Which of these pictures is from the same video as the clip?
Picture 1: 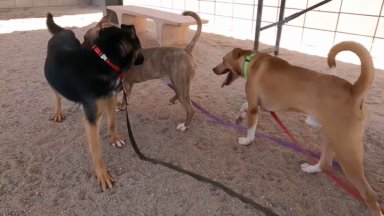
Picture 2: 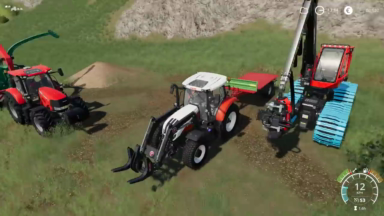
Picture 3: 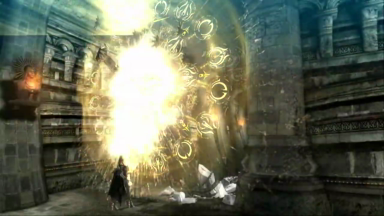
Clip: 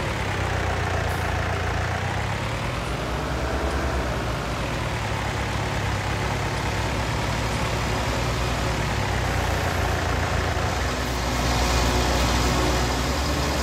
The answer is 2